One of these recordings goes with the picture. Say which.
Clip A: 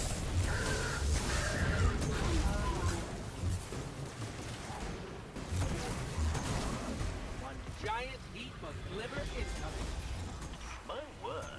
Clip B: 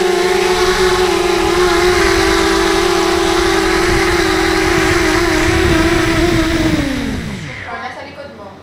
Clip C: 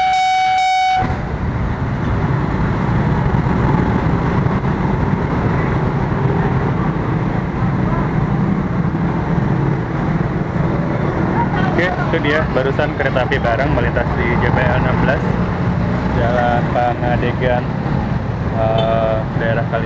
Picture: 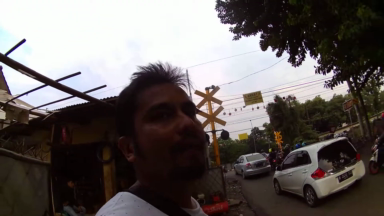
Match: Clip C